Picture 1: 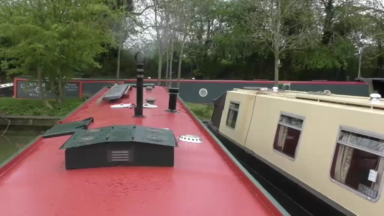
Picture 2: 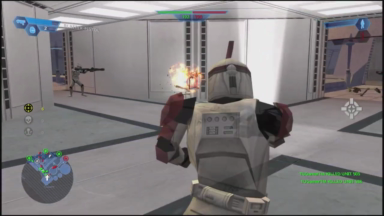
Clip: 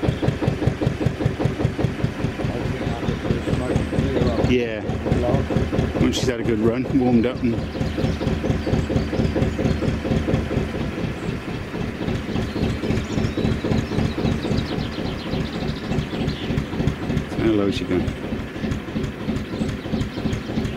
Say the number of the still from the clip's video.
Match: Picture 1